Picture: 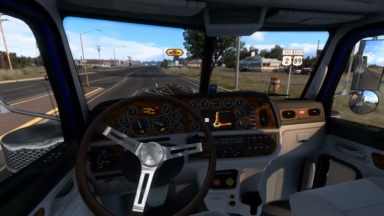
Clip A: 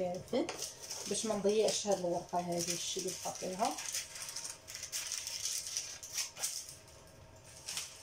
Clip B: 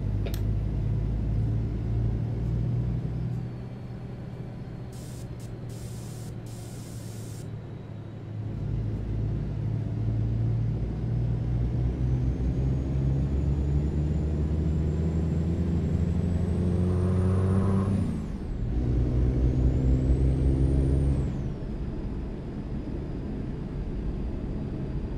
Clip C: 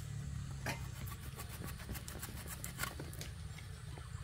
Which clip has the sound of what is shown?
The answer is B